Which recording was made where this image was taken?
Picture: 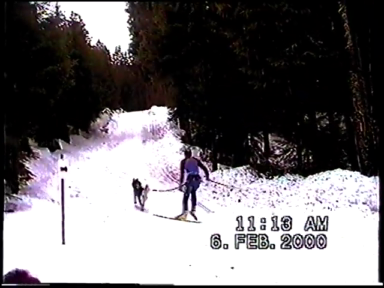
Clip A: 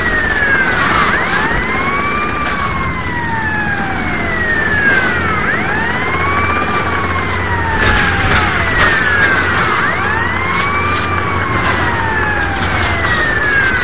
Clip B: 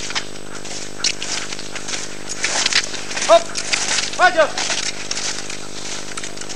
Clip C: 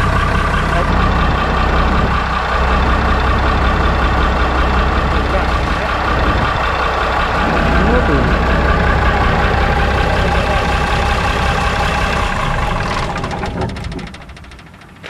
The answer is B